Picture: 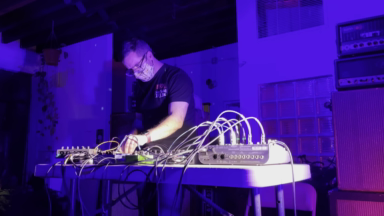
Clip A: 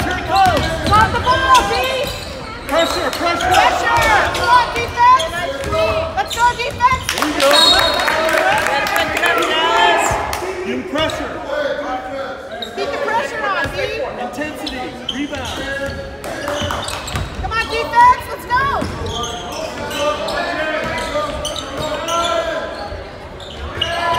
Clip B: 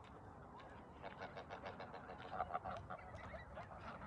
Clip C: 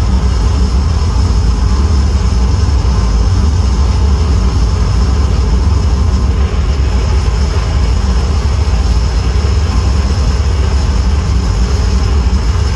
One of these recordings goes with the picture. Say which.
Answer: C